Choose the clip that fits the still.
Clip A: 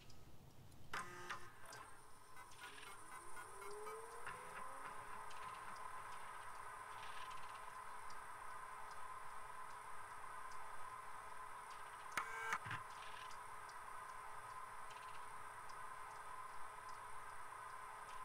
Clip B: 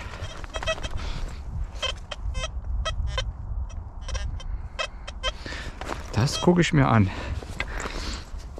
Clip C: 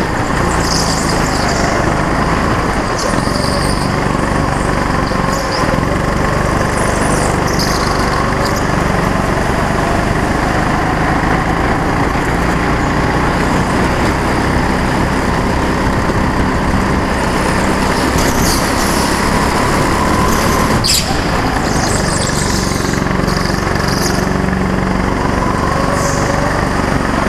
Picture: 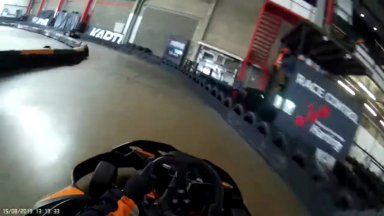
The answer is C